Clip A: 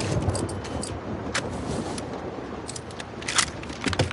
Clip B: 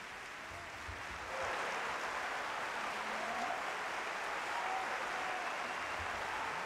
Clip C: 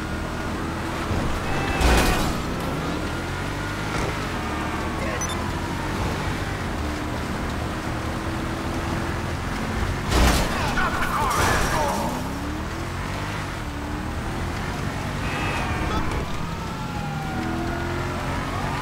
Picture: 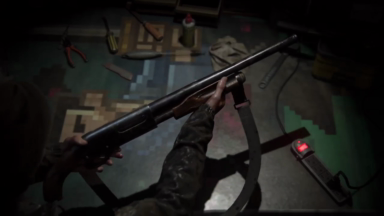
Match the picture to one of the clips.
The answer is A